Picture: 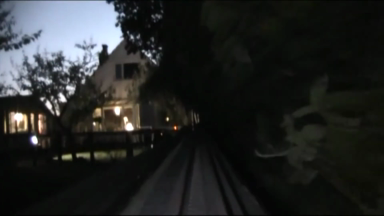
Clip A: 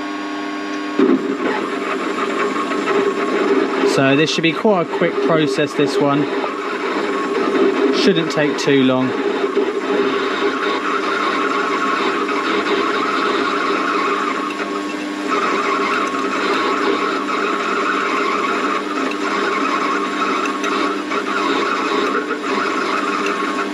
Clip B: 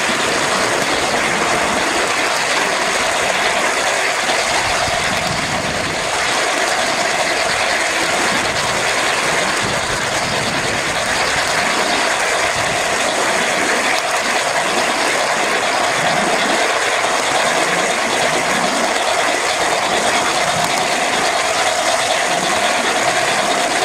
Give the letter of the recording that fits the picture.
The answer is B